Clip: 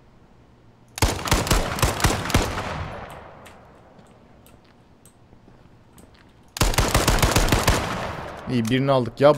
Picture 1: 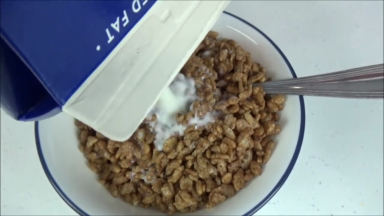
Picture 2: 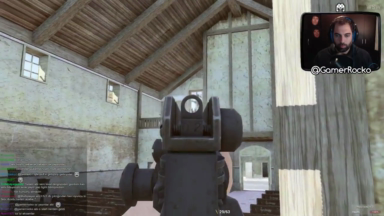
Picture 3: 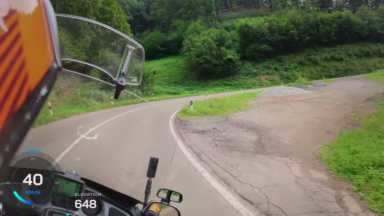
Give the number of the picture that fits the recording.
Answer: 2